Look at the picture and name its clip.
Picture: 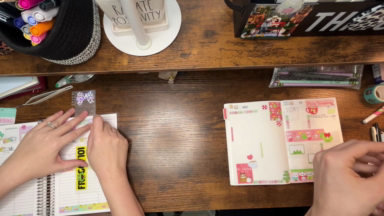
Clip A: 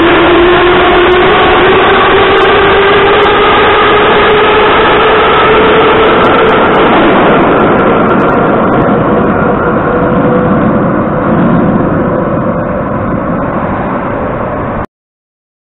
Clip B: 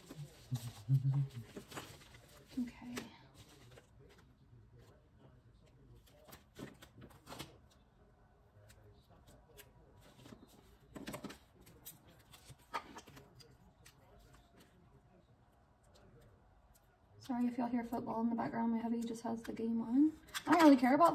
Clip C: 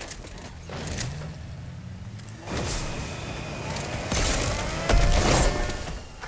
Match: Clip B